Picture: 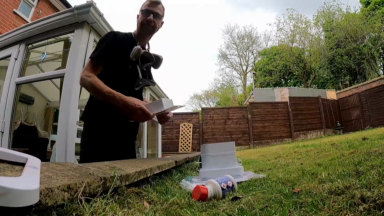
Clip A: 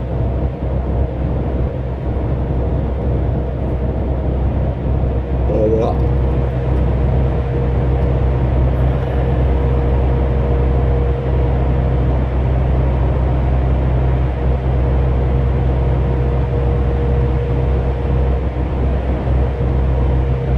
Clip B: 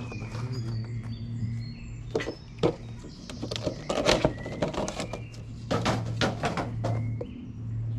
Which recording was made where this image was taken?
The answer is B